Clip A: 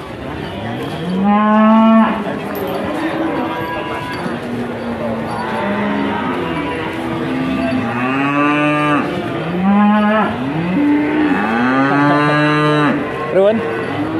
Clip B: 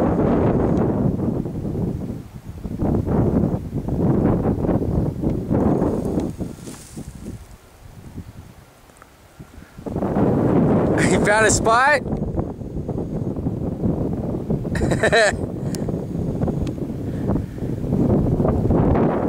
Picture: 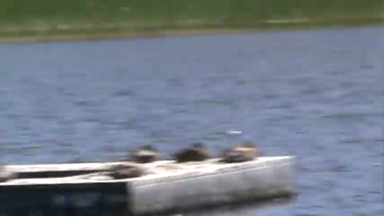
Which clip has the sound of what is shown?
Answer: B